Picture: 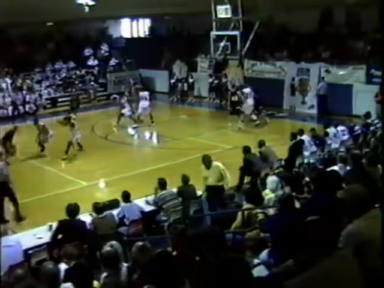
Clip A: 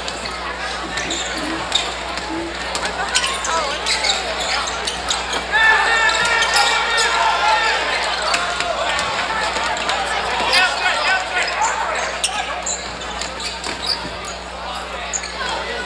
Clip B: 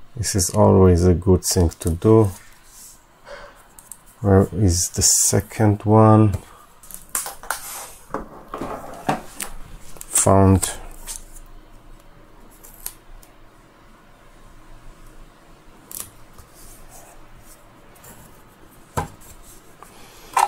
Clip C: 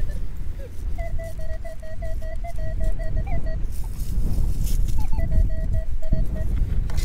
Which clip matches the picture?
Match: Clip A